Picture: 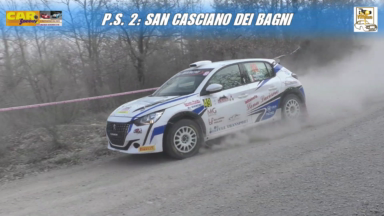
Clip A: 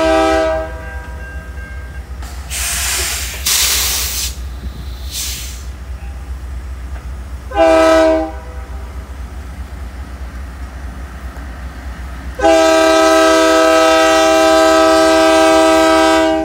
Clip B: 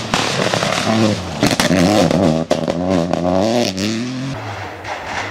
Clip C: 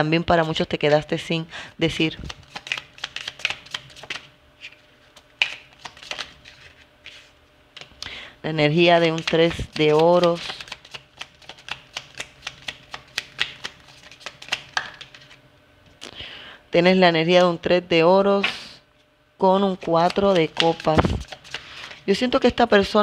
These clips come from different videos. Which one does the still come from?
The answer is B